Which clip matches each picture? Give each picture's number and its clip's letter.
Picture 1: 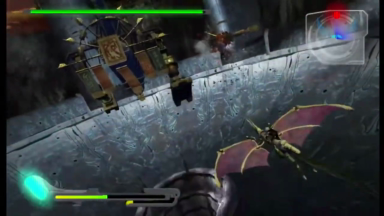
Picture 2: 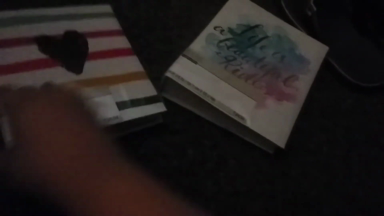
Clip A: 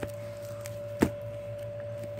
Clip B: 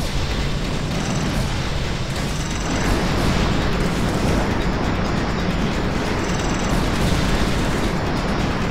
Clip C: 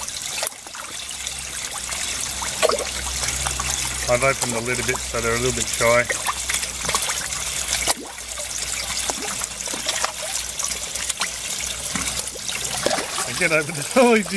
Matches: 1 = B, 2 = A